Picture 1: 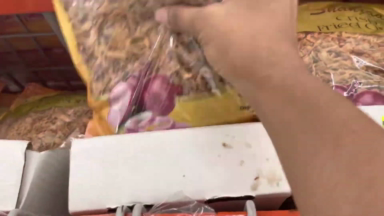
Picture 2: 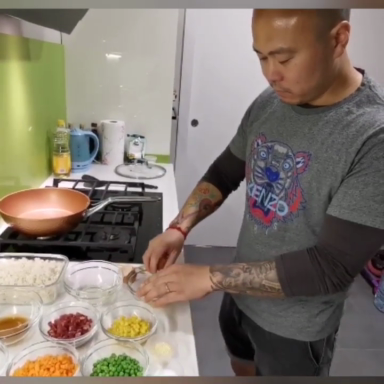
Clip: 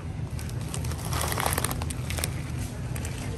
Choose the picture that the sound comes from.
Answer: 1